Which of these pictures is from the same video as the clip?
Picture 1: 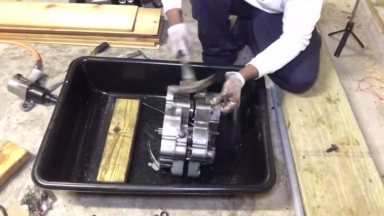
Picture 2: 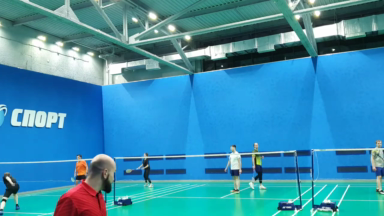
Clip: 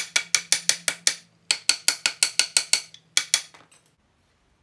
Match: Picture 1